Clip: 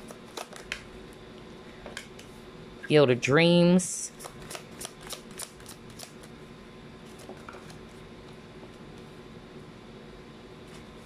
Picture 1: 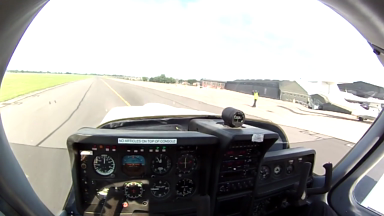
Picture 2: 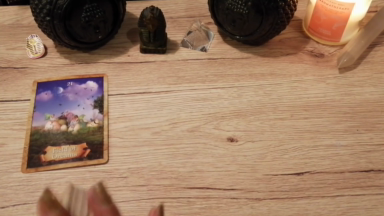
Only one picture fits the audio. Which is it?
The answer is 2